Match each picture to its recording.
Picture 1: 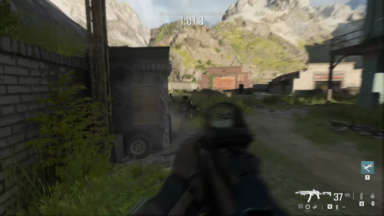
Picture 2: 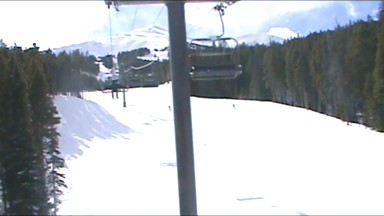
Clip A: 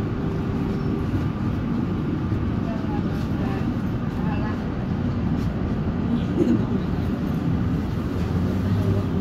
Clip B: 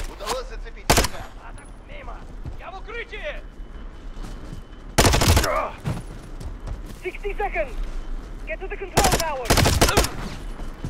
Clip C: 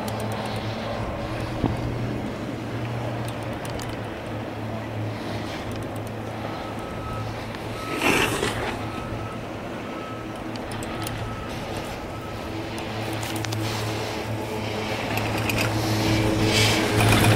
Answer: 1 B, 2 C